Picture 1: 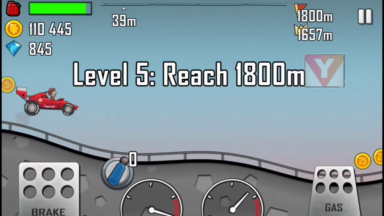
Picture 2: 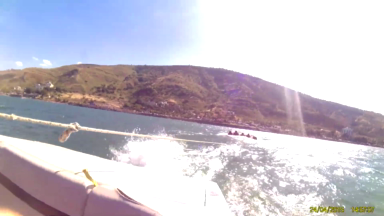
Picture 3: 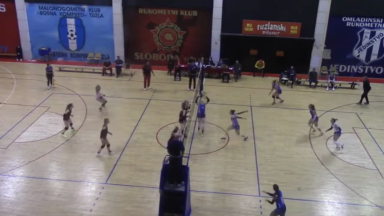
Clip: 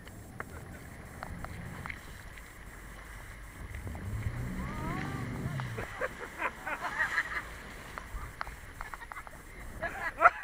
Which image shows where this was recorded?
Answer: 2